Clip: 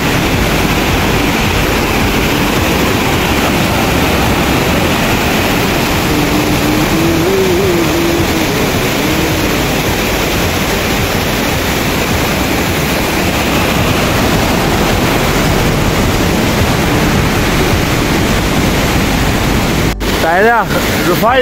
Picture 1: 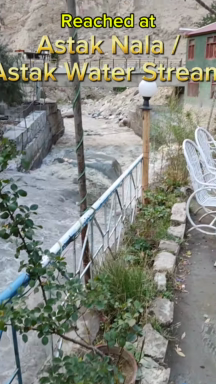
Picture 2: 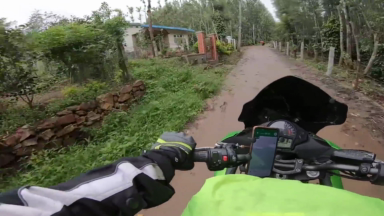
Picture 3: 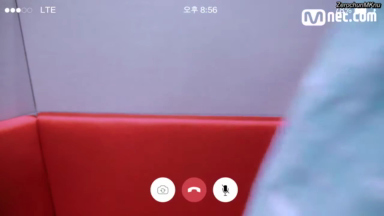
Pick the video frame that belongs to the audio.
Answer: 1